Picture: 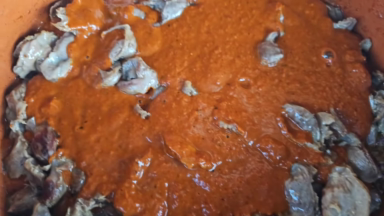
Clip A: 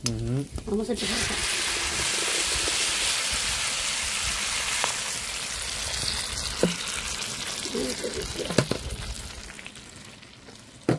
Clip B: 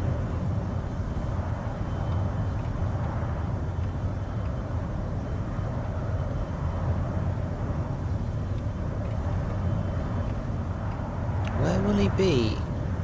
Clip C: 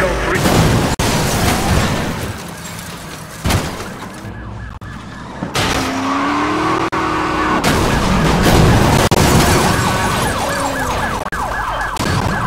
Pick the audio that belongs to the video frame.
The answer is A